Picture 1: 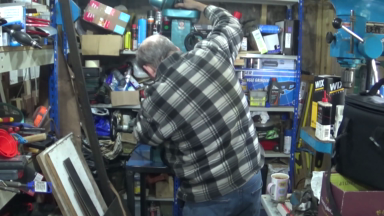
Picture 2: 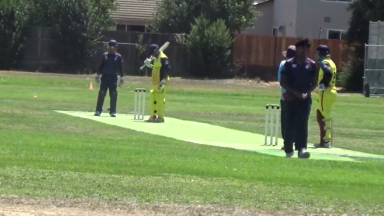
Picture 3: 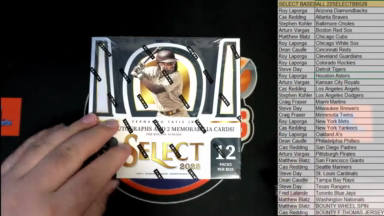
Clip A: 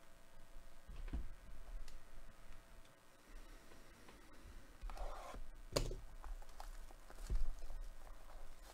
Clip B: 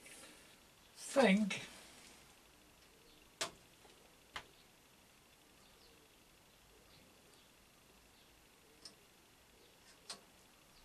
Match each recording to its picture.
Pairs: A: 3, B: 1